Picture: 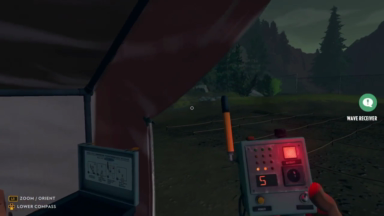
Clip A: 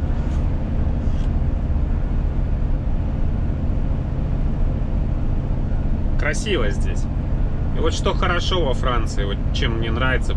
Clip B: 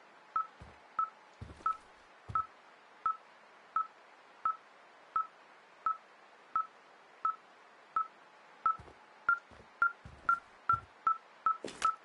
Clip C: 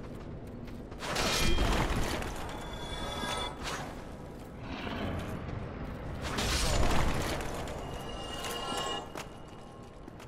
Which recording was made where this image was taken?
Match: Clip B